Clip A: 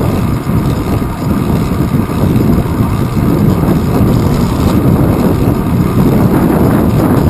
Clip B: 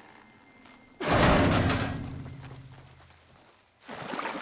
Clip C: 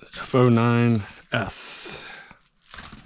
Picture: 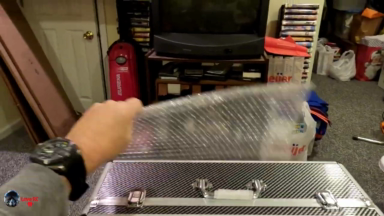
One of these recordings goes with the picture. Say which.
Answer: C